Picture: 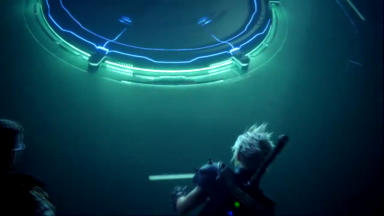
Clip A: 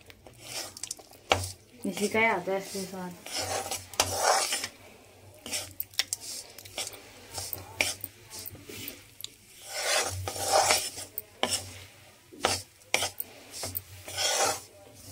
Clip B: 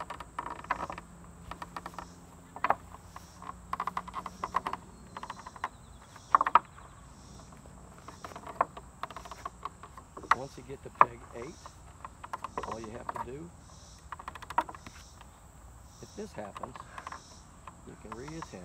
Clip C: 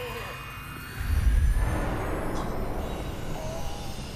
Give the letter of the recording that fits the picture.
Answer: C